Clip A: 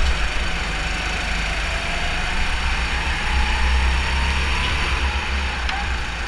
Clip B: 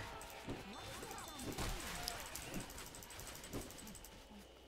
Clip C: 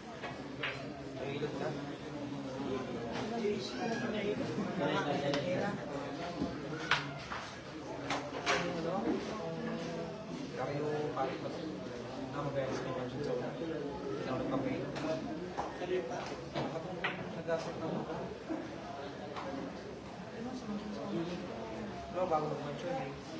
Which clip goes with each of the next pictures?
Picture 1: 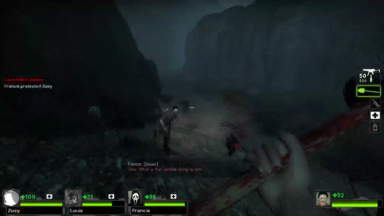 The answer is B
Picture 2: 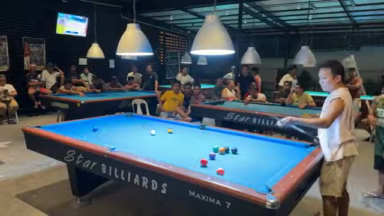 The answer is C